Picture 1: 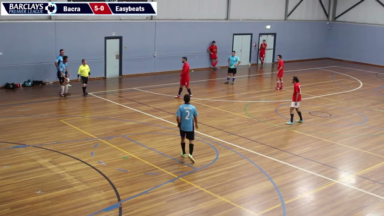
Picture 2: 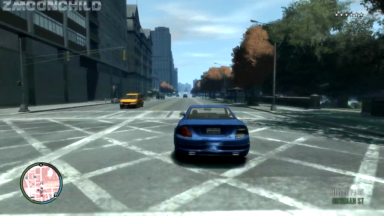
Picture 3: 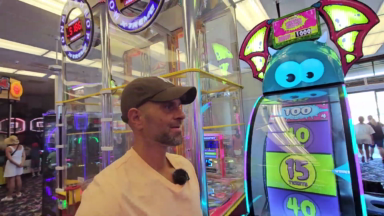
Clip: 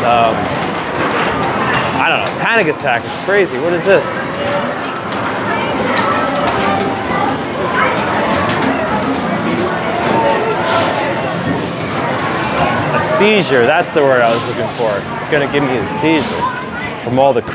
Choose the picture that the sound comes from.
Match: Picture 3